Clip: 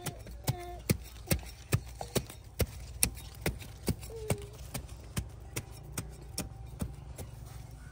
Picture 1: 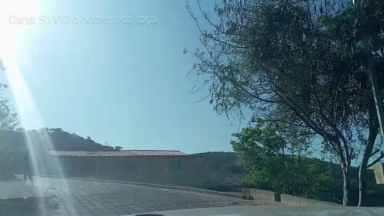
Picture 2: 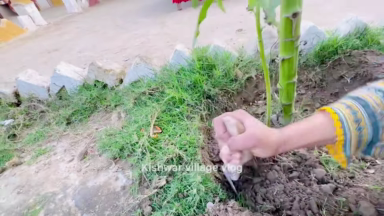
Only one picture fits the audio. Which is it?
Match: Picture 2